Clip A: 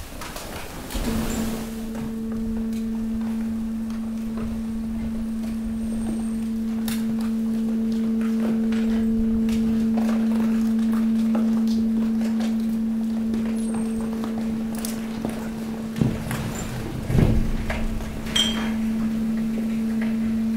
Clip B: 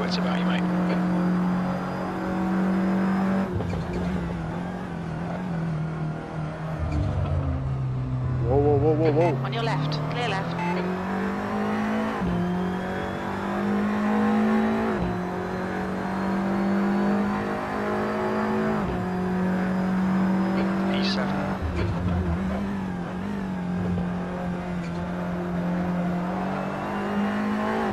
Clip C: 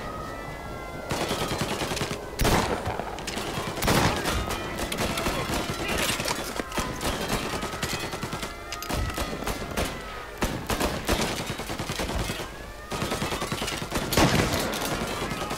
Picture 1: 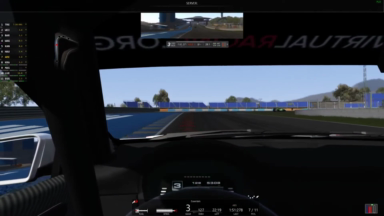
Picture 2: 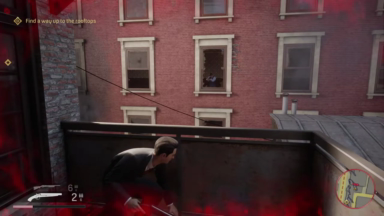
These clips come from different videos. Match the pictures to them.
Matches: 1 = B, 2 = C